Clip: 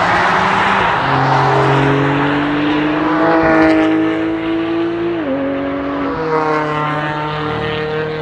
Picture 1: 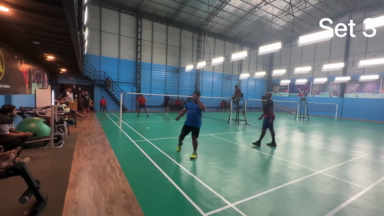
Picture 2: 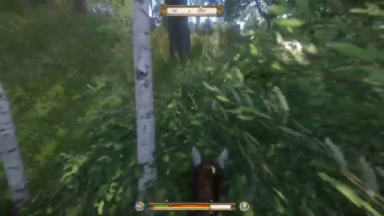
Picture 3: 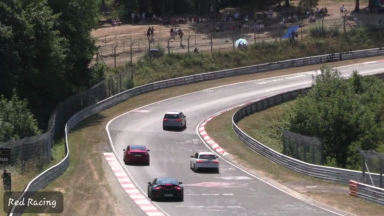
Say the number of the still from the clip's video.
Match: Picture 3